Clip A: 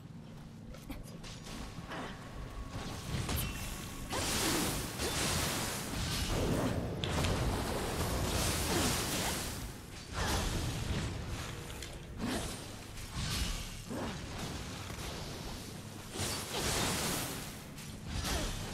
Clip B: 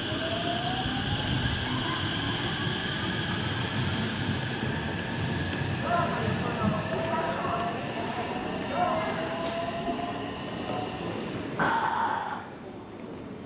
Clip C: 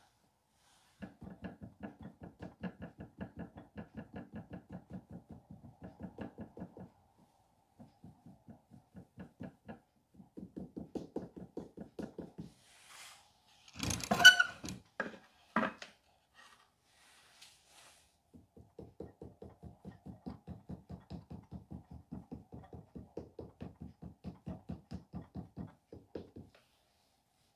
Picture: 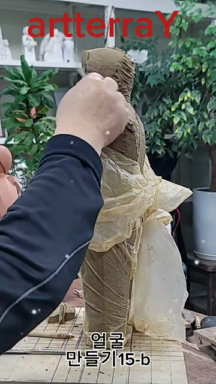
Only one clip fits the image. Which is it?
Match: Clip C